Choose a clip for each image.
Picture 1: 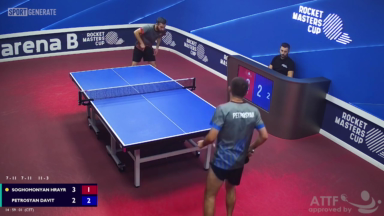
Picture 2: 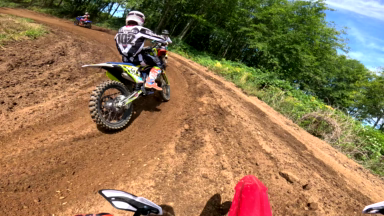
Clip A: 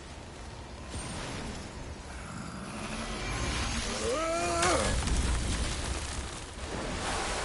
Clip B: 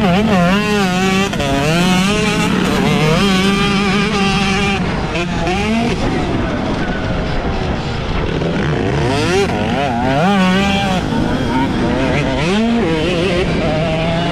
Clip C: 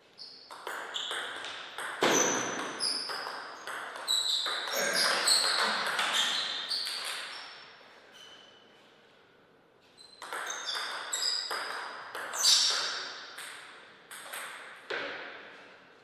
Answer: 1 C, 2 B